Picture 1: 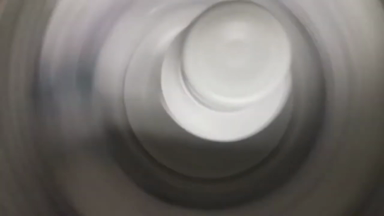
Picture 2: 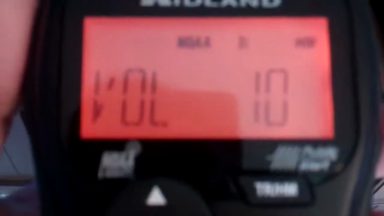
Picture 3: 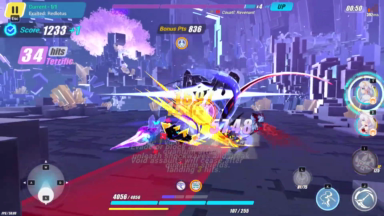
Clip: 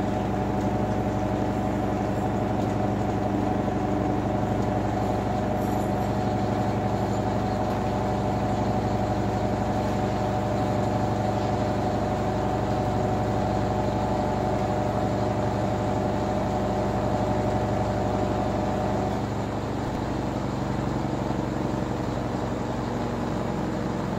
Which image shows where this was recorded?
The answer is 1